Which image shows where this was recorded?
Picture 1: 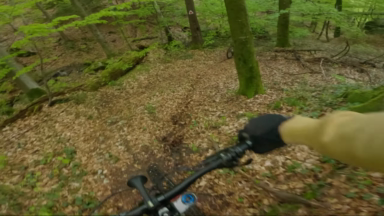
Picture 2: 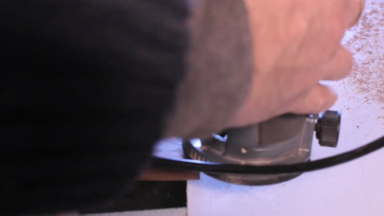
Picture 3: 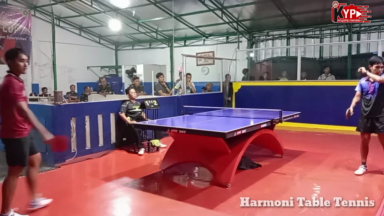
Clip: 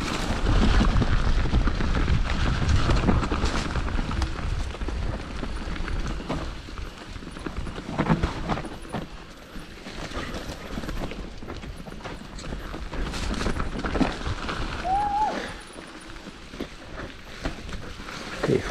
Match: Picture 1